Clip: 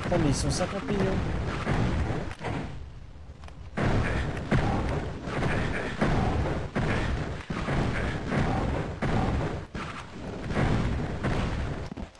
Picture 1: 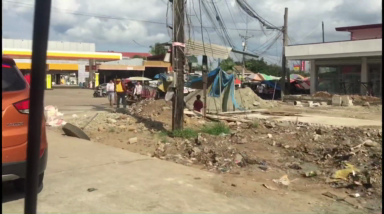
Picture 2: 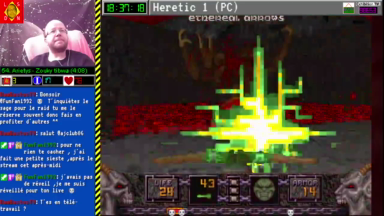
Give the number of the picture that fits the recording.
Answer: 2